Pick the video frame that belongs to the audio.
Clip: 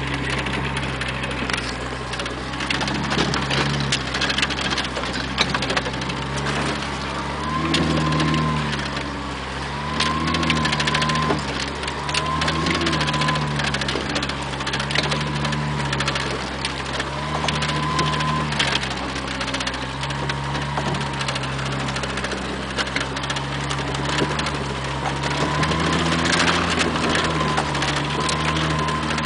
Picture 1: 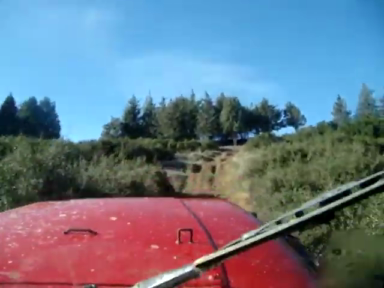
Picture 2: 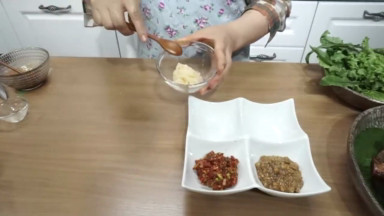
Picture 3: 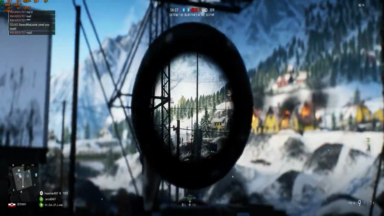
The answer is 1